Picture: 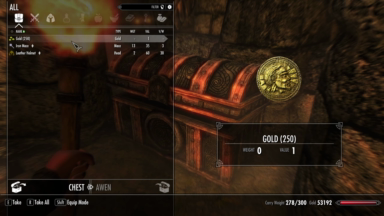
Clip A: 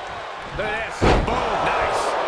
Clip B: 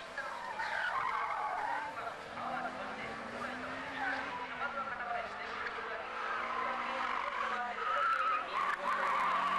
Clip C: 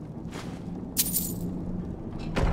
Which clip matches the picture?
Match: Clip C